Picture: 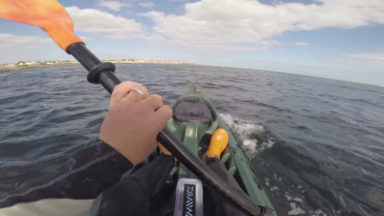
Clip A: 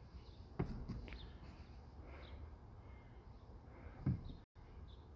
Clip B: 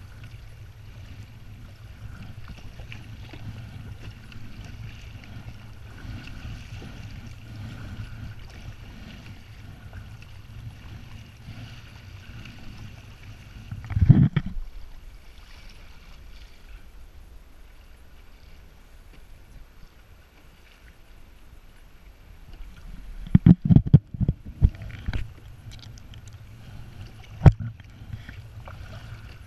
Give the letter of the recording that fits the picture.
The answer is B